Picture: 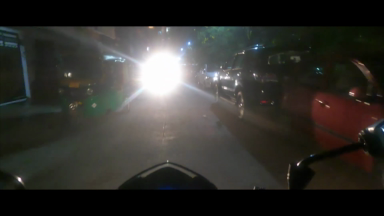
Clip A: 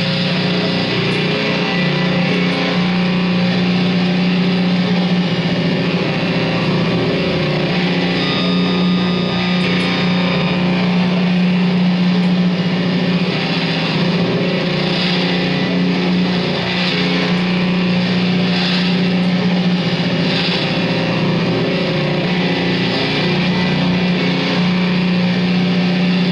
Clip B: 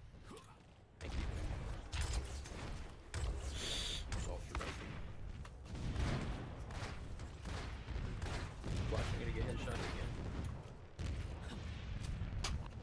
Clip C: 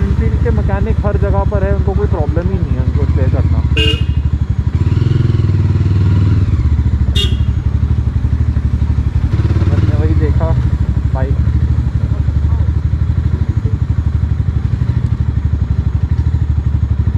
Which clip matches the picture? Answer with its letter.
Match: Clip C